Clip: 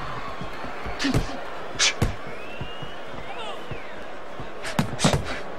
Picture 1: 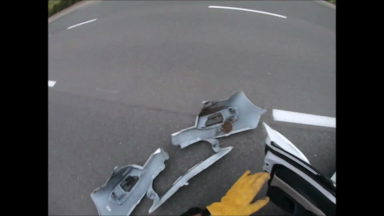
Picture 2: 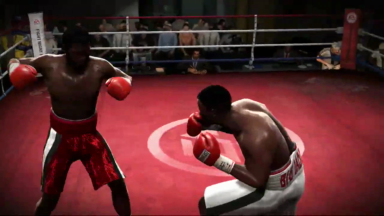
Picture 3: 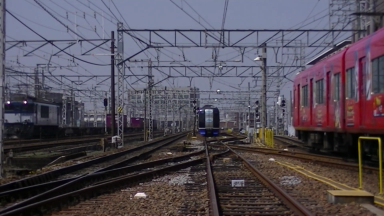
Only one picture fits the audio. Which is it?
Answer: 2